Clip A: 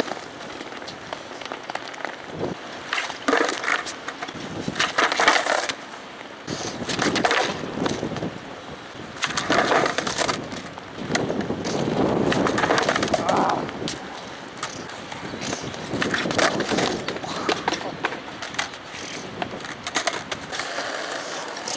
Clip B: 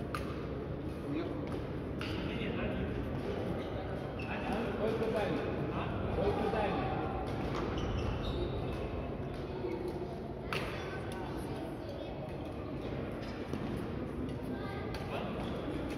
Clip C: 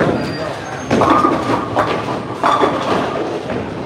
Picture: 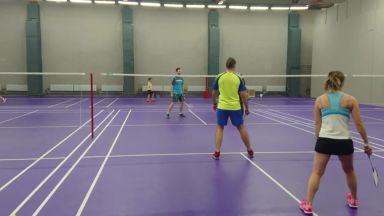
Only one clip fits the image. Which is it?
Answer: B